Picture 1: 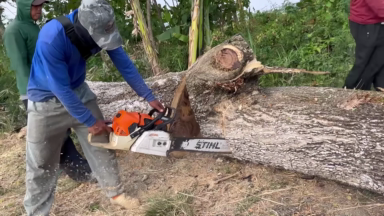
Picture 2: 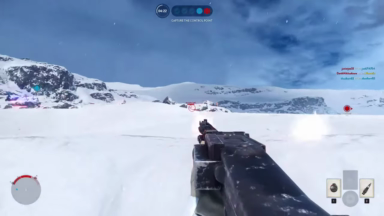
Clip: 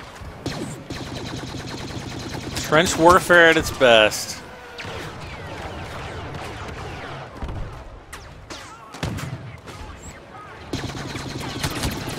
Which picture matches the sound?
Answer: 2